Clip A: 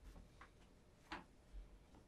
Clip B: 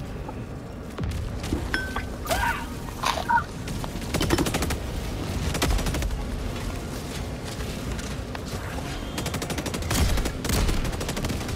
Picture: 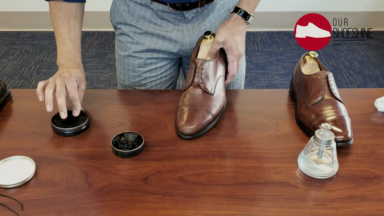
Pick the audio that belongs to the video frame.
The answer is A